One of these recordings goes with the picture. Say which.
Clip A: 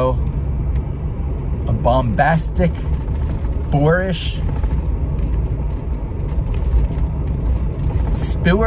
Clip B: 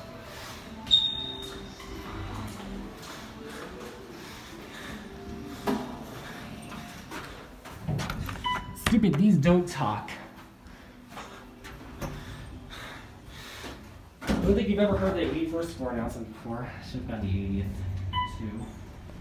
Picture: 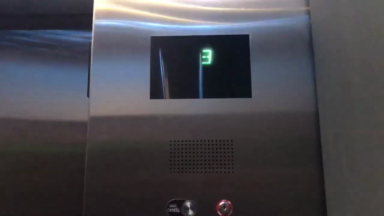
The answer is B